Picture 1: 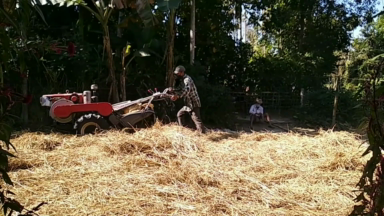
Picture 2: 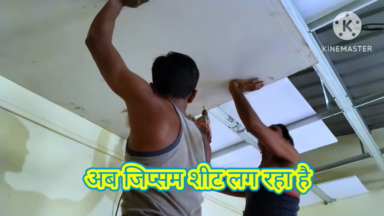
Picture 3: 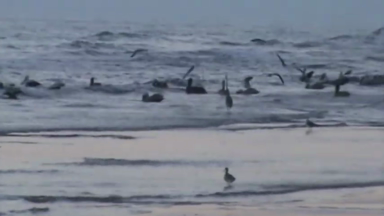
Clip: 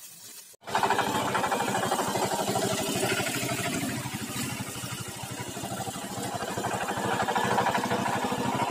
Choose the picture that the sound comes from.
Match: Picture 1